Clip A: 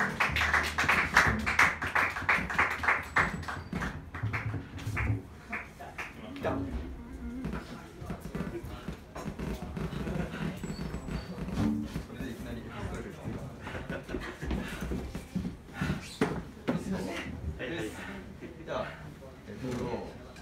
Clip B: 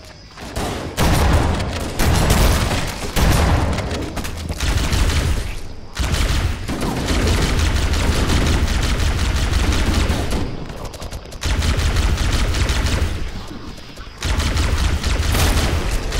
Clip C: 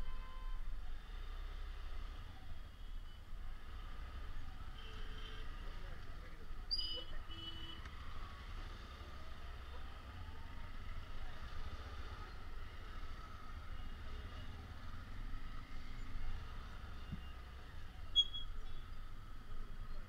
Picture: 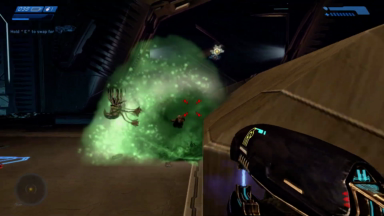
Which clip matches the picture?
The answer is B